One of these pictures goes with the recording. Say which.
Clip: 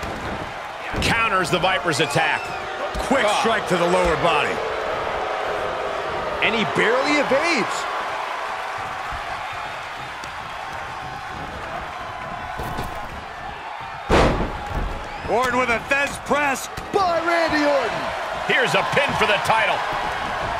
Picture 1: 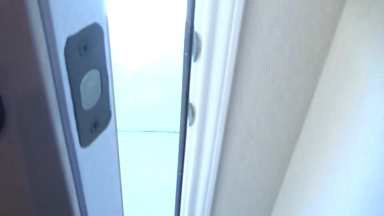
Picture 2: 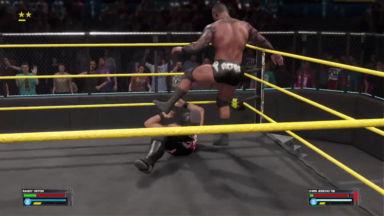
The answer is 2